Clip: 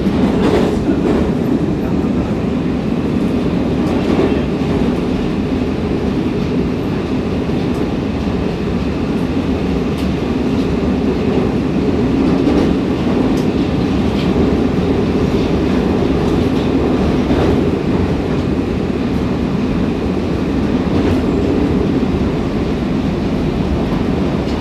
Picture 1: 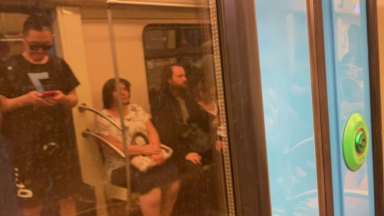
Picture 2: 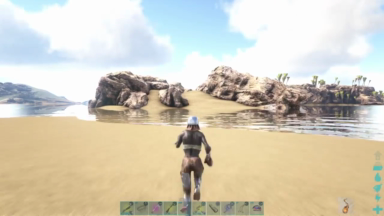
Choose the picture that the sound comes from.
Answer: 1